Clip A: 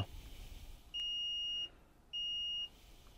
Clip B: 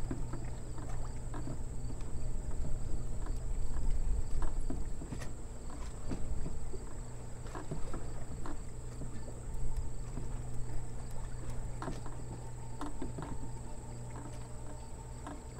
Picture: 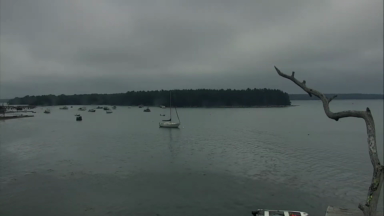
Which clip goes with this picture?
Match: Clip B